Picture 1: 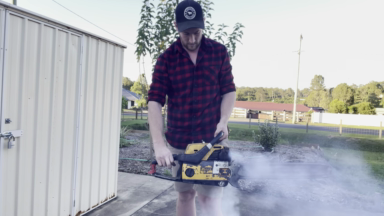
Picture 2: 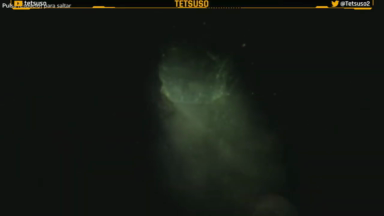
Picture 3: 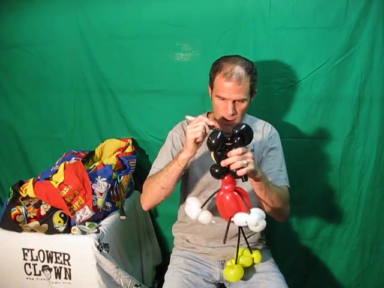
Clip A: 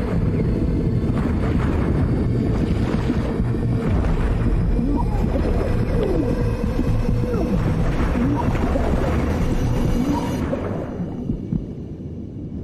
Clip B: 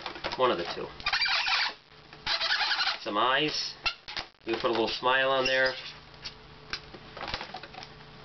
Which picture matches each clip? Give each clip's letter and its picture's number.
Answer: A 2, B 3